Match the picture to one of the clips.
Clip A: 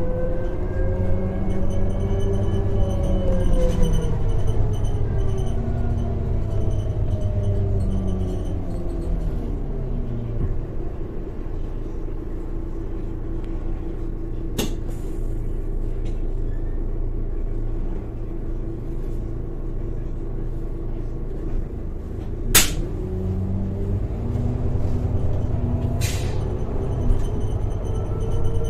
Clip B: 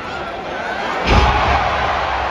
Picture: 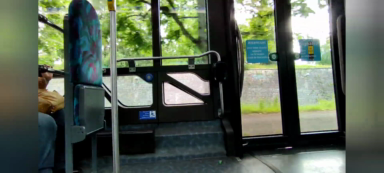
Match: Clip A